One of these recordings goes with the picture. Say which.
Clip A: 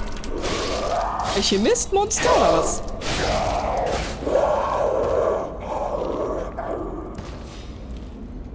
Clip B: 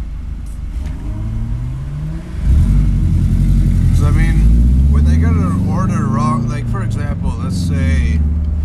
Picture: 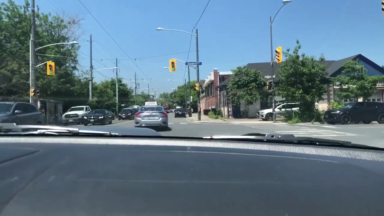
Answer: B